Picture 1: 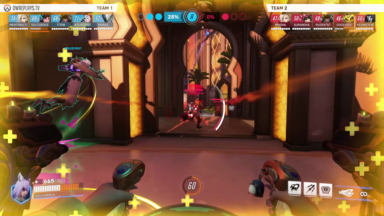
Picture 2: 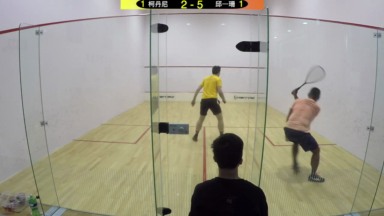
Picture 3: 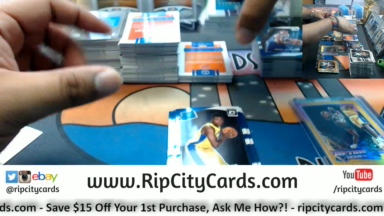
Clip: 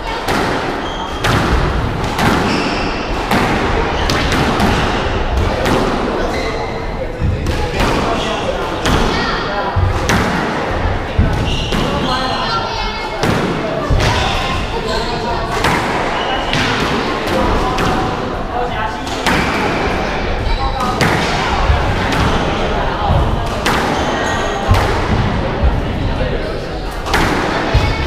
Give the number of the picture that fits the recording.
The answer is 2